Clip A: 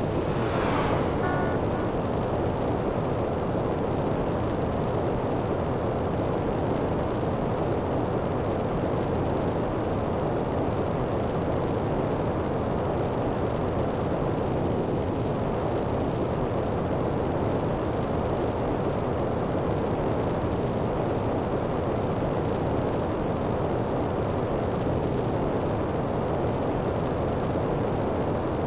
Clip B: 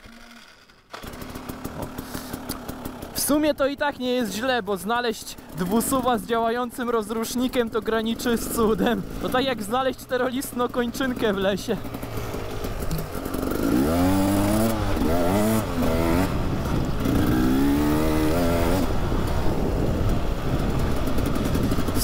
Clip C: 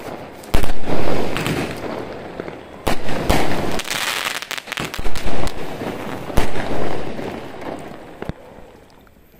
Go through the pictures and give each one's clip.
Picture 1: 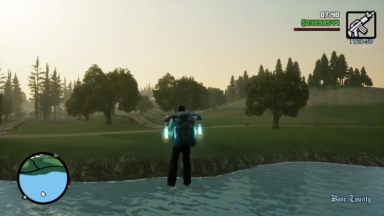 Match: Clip A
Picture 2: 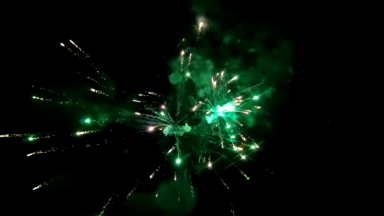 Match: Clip C